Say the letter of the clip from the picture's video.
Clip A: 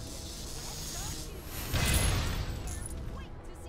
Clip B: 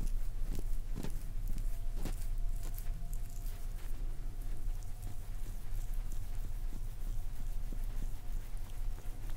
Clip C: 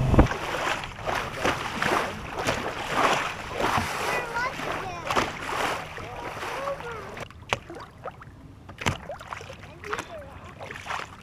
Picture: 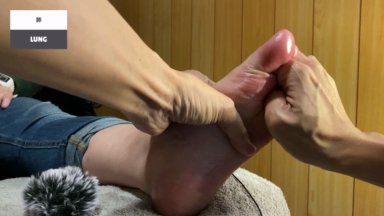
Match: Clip B